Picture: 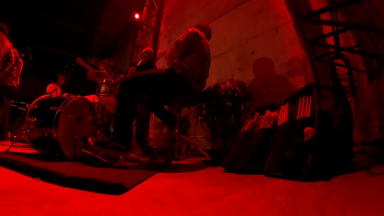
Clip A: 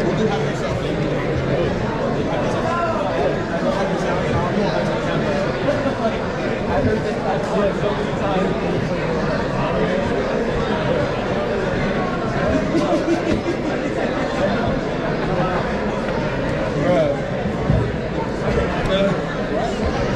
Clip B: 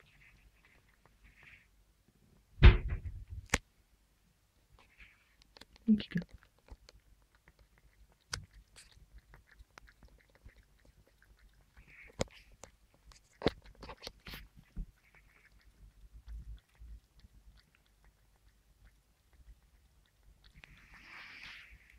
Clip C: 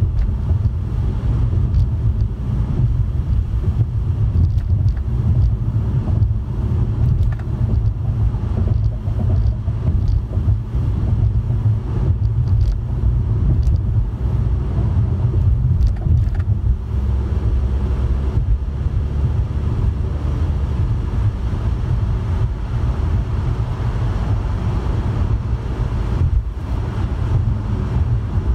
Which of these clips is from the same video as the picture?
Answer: A